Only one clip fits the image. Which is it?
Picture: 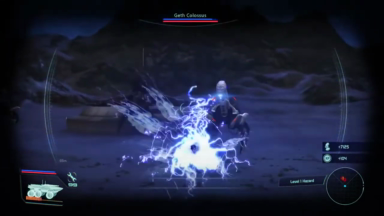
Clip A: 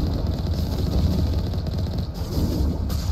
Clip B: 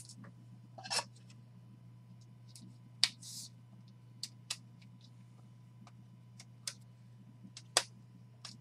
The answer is A